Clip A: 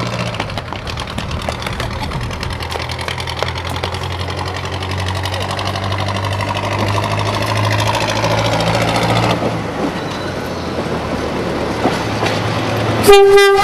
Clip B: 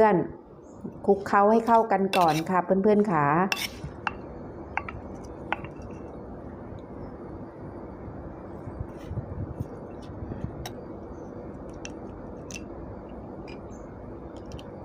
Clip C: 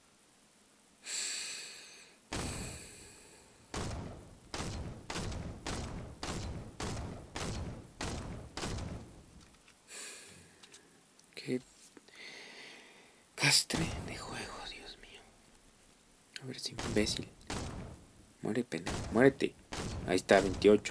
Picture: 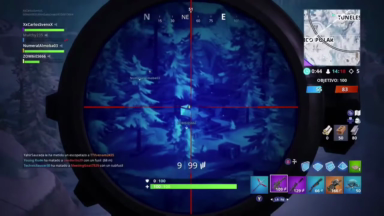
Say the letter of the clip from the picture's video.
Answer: C